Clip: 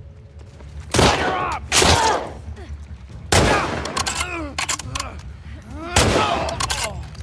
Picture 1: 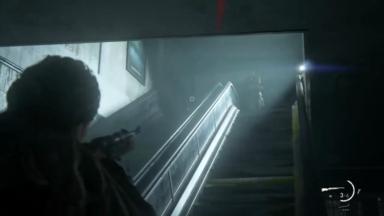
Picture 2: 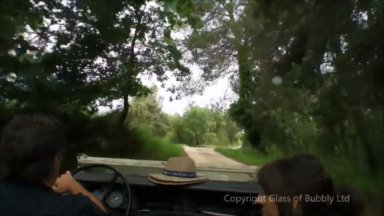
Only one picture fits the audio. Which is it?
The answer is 1